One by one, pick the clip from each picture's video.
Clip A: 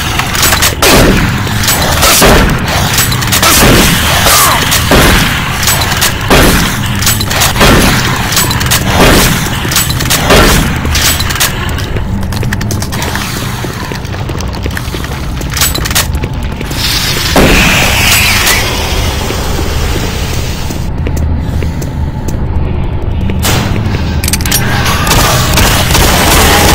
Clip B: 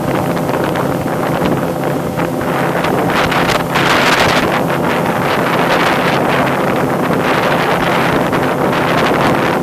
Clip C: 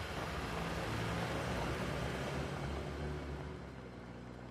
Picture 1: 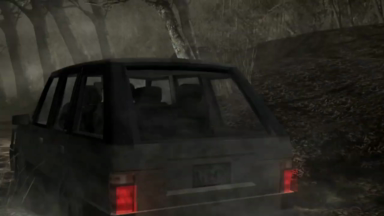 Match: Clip C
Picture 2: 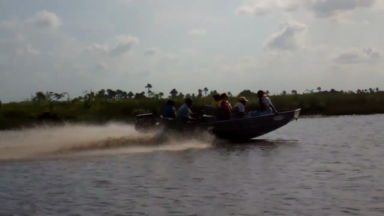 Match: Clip B